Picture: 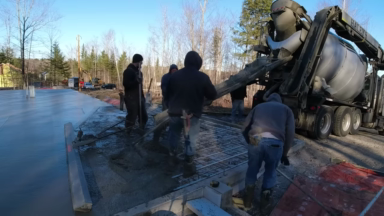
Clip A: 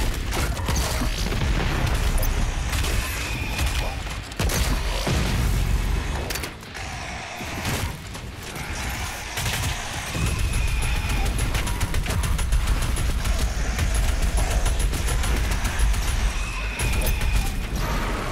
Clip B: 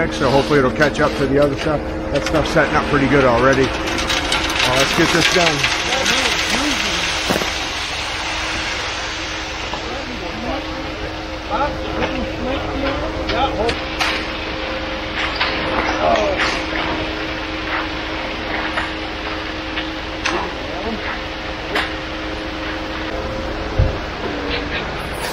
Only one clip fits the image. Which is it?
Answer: B